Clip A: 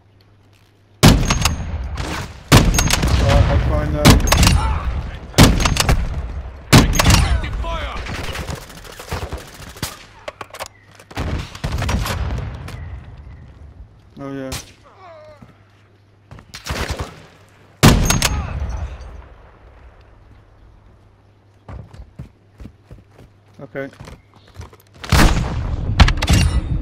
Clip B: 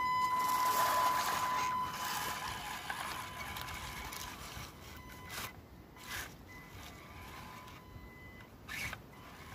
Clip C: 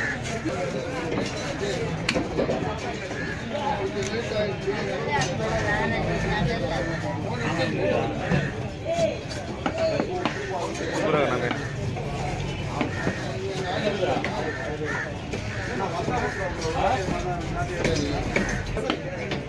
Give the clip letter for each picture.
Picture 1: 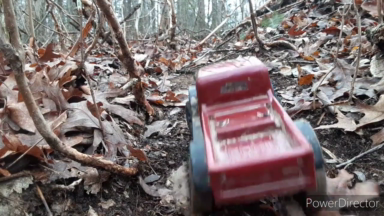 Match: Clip B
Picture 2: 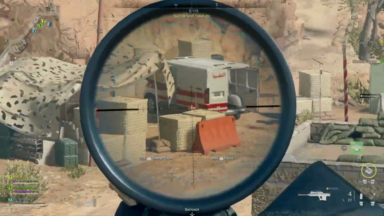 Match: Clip A